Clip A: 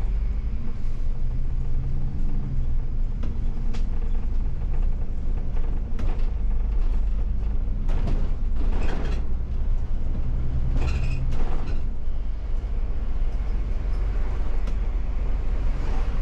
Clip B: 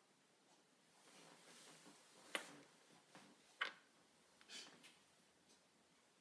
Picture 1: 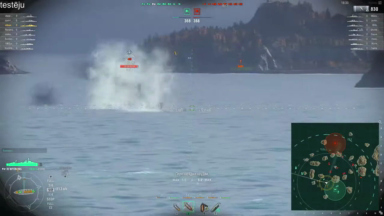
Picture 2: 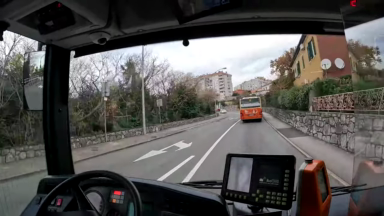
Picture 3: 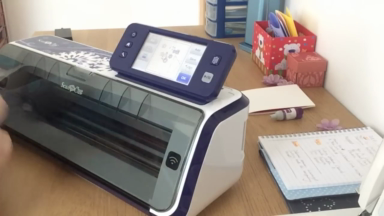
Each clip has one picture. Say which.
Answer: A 2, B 3